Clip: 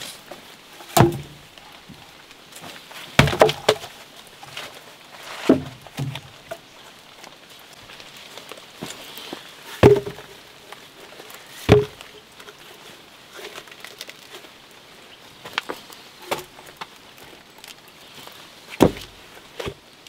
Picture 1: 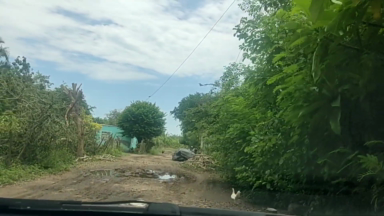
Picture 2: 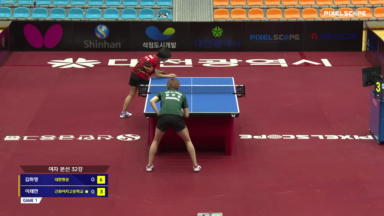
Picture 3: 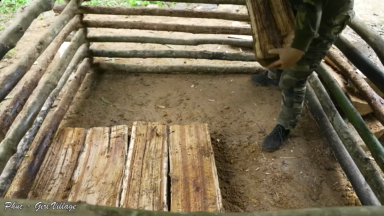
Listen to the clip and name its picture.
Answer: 3